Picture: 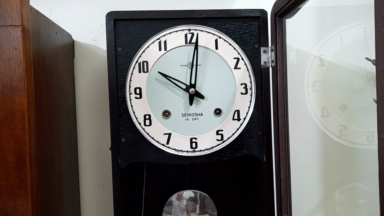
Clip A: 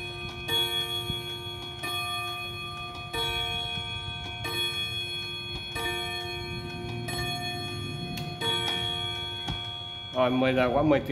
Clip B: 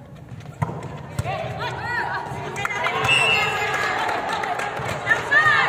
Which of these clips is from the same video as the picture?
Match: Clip A